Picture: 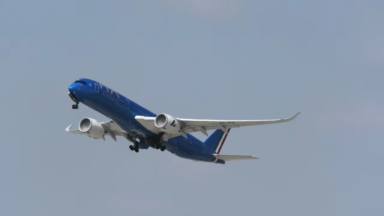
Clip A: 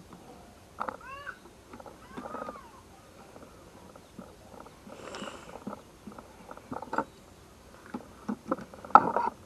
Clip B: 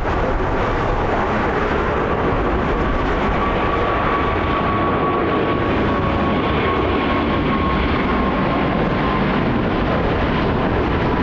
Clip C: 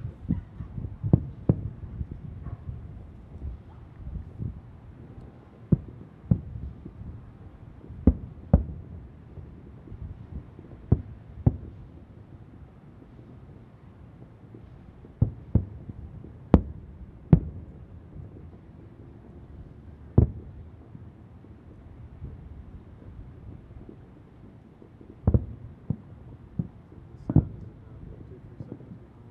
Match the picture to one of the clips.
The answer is B